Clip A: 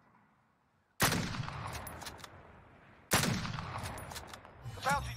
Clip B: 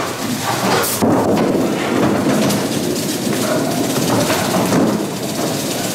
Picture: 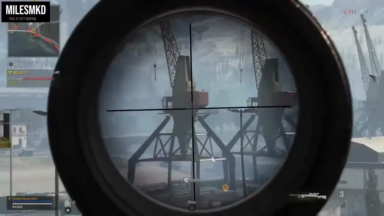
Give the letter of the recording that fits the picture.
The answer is A